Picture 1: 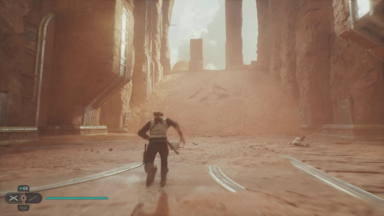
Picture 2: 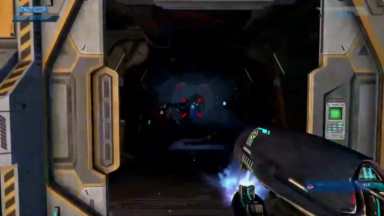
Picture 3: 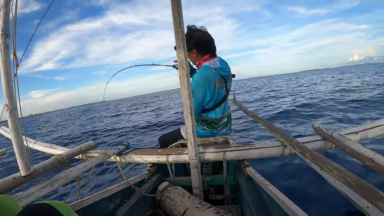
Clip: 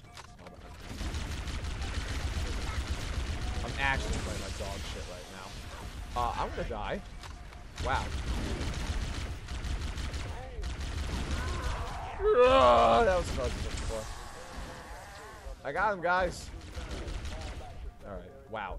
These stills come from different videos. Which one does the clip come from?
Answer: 2